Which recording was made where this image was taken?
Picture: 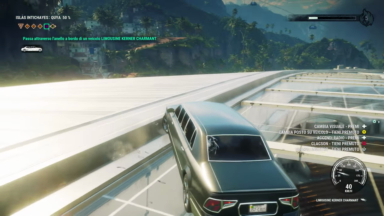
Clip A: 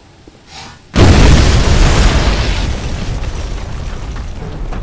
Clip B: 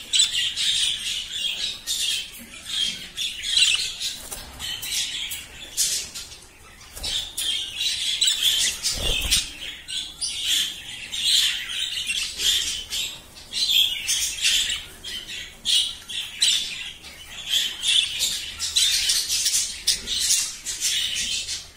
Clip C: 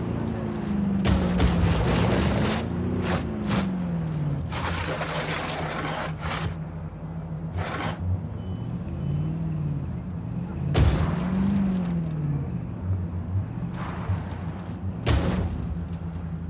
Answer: C